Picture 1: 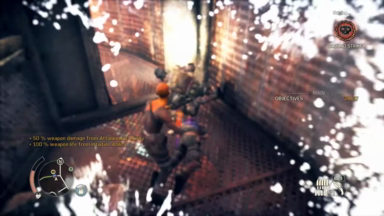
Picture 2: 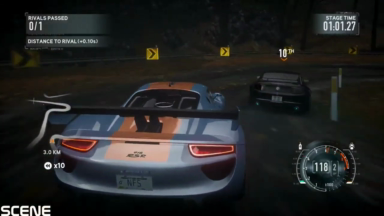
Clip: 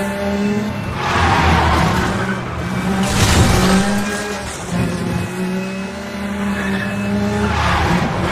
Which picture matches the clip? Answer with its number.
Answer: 2